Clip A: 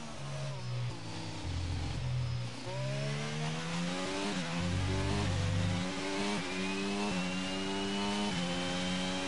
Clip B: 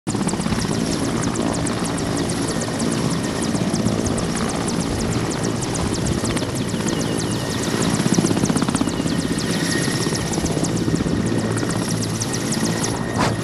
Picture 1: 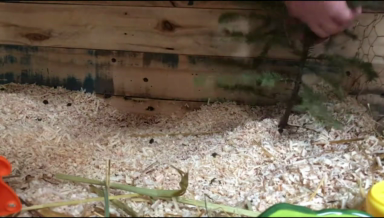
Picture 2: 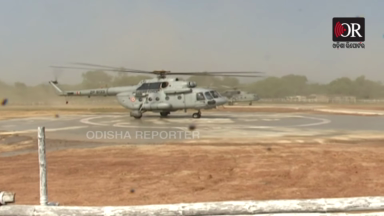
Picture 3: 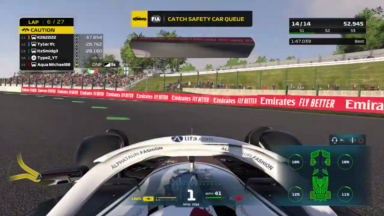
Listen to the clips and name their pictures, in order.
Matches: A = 3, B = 2